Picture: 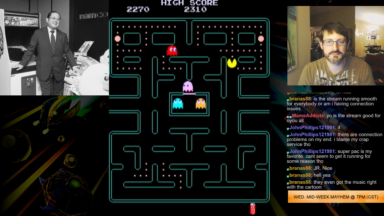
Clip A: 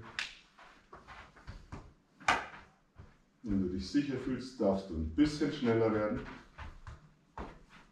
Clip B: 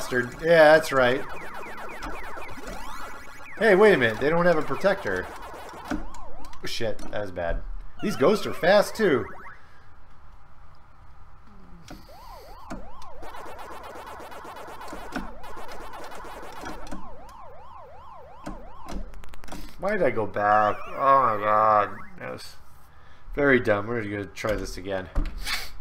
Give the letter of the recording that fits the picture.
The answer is B